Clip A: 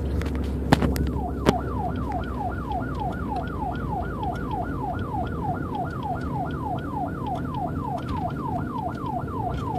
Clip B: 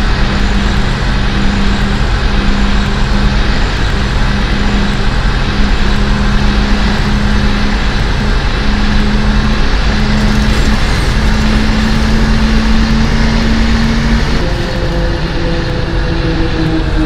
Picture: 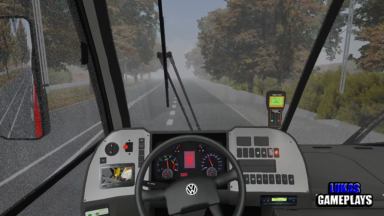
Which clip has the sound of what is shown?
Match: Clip B